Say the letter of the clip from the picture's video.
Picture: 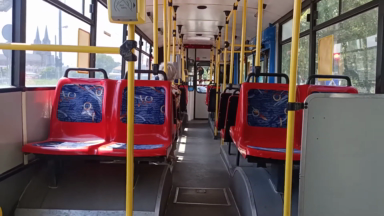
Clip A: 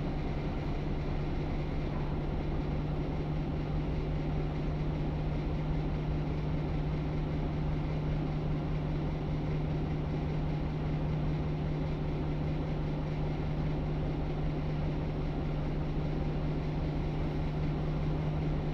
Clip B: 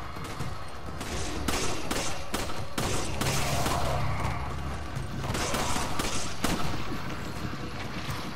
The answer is A